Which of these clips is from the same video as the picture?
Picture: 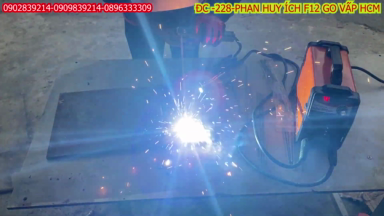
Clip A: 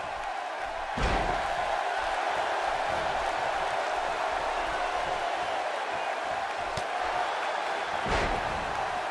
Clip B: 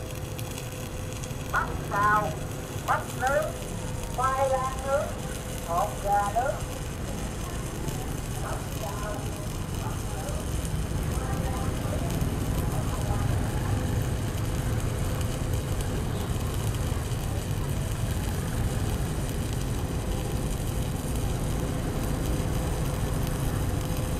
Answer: B